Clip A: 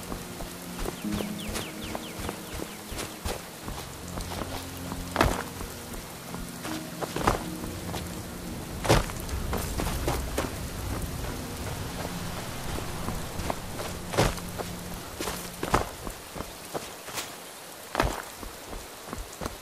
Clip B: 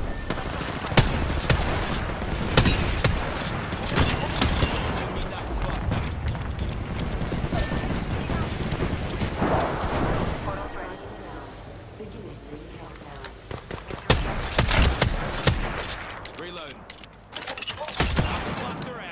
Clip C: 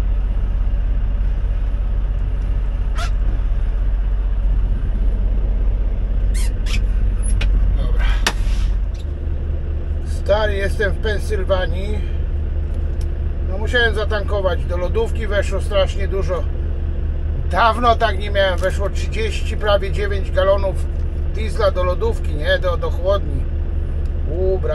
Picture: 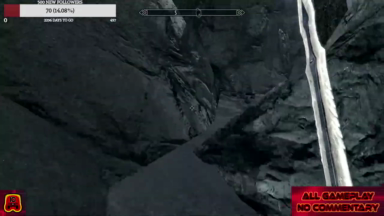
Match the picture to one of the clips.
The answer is A